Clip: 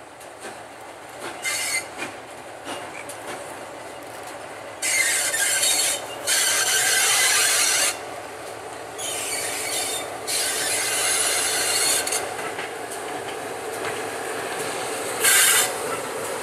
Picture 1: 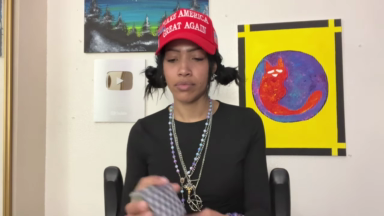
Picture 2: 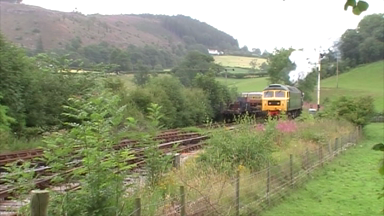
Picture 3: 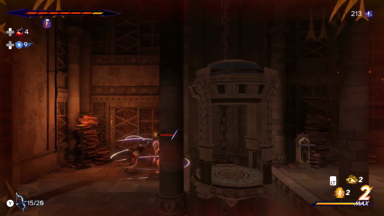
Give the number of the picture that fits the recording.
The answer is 2